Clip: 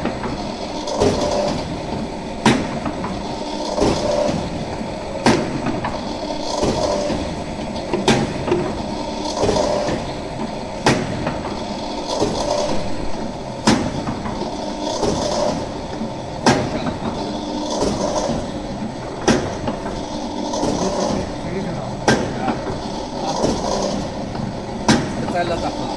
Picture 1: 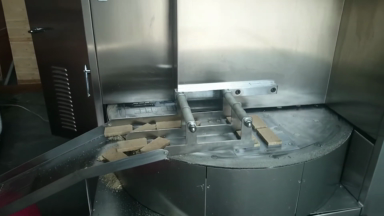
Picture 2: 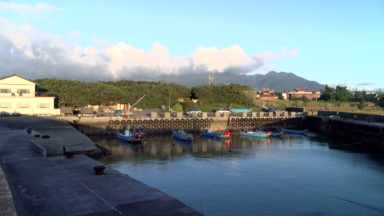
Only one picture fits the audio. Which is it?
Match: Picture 1